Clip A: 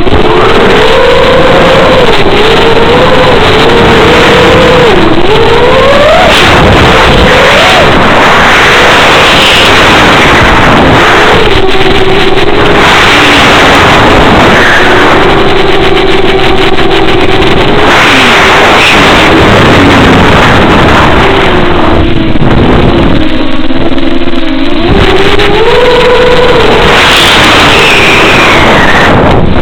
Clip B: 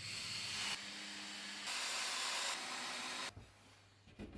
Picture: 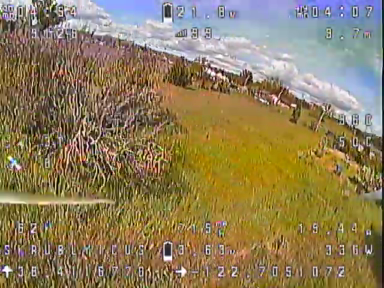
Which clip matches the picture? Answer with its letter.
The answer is A